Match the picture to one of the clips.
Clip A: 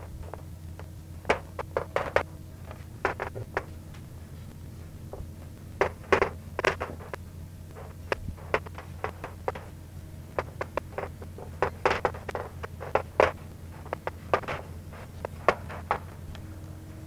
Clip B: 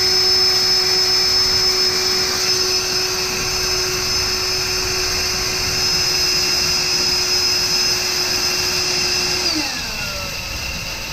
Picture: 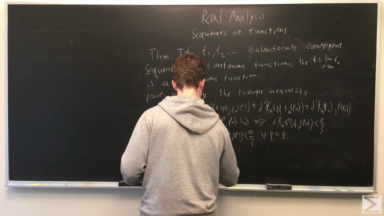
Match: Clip A